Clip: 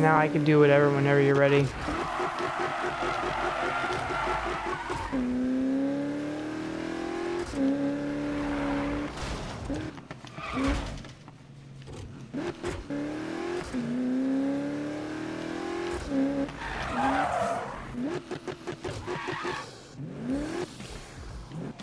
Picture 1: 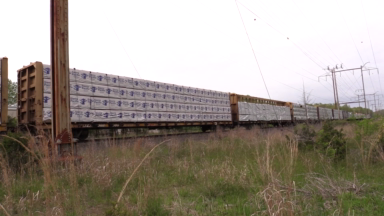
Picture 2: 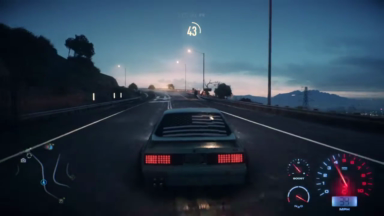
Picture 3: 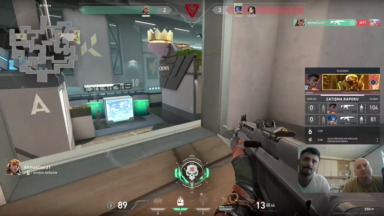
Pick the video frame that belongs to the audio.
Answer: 2